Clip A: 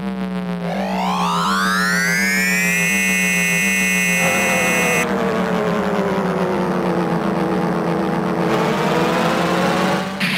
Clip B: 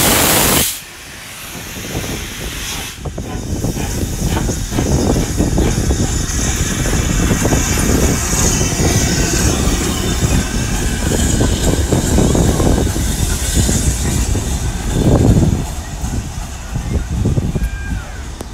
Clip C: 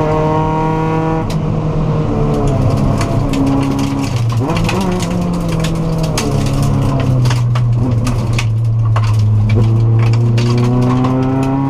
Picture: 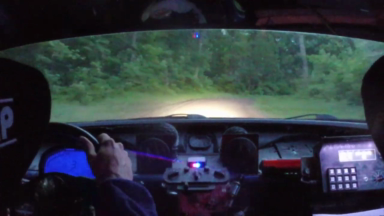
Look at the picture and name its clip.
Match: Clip C